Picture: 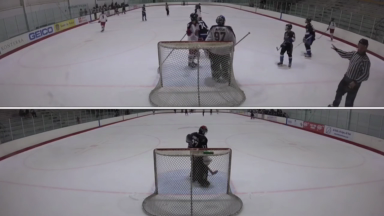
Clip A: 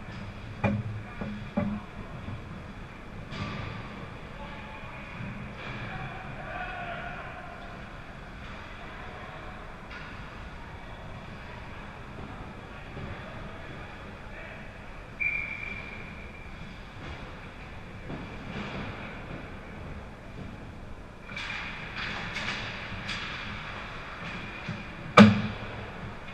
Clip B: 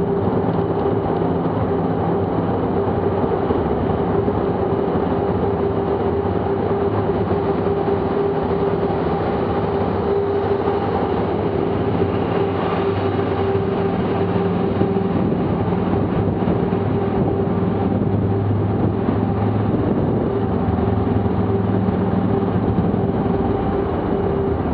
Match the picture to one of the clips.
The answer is A